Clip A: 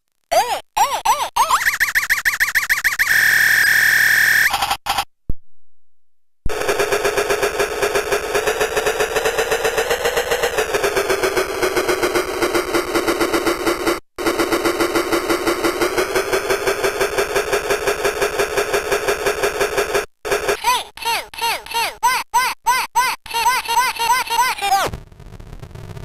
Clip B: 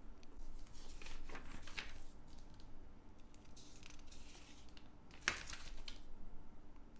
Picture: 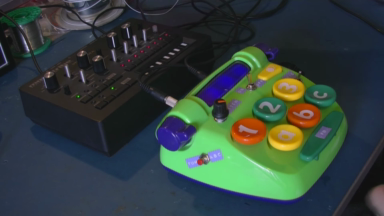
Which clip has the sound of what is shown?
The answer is A